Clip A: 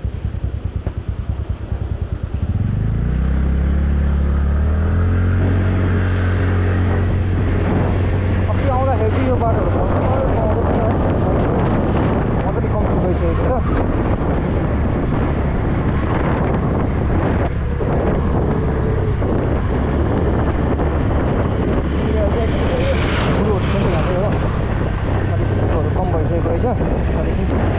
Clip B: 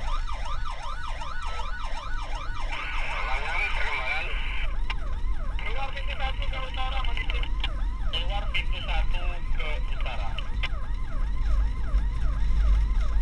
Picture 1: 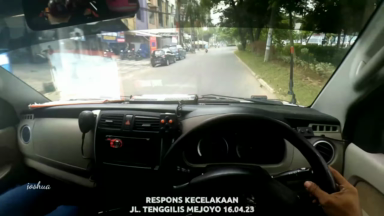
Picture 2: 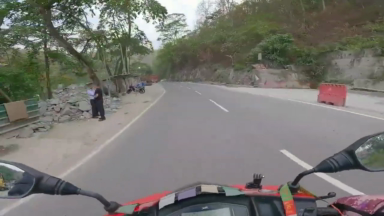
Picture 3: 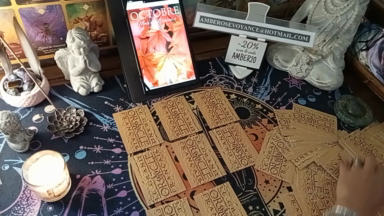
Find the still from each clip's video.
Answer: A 2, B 1